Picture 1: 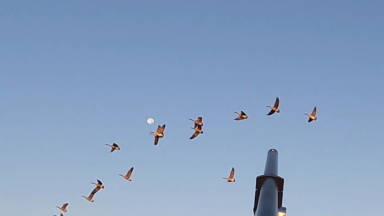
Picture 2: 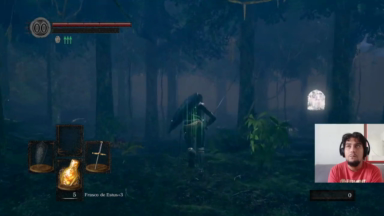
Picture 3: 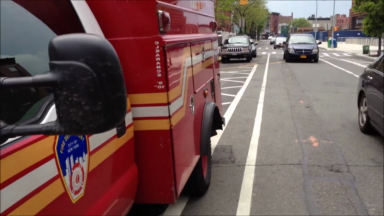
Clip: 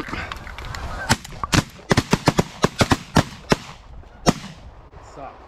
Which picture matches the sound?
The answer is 1